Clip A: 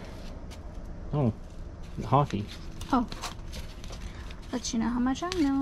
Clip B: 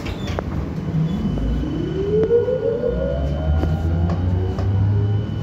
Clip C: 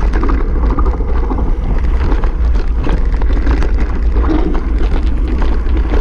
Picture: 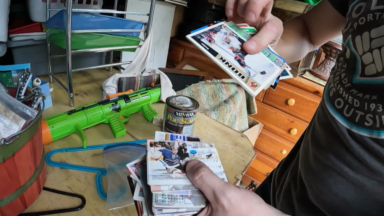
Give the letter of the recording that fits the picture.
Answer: A